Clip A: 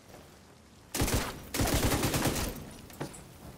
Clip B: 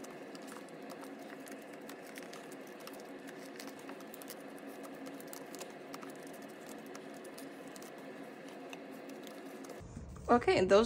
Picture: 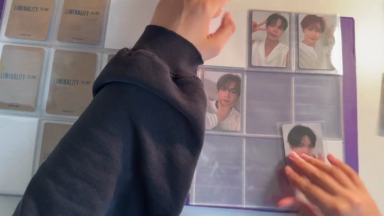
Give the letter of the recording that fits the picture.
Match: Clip B